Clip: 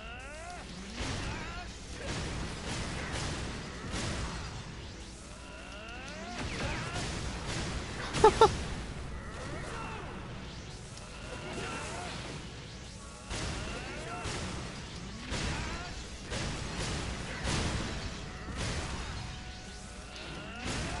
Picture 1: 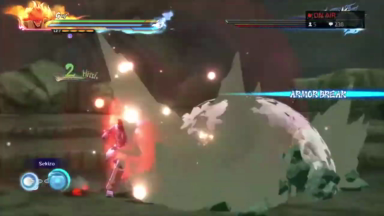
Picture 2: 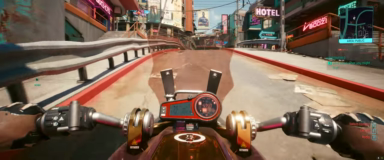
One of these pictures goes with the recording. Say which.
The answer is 1